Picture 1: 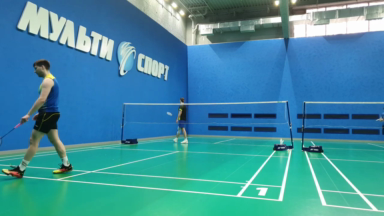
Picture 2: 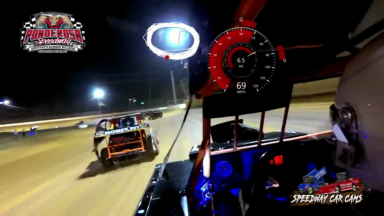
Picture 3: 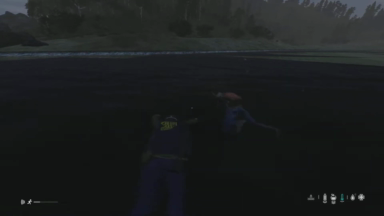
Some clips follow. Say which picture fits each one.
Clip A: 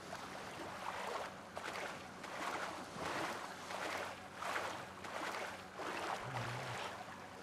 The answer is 3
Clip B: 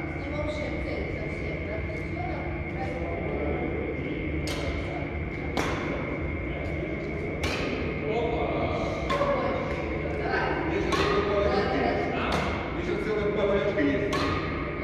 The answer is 1